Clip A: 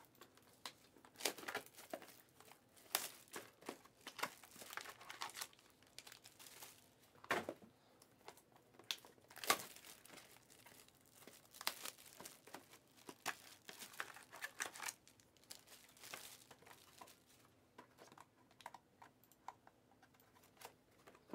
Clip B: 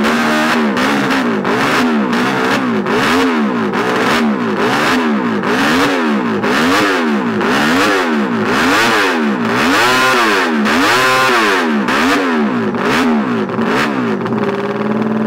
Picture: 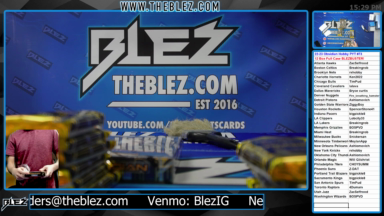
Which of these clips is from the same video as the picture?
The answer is A